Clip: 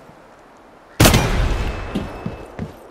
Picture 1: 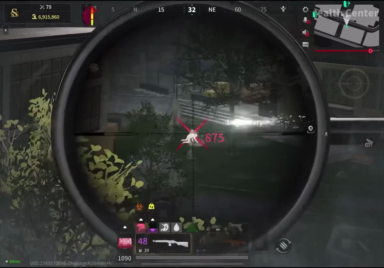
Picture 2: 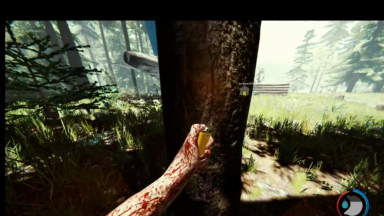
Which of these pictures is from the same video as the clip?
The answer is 1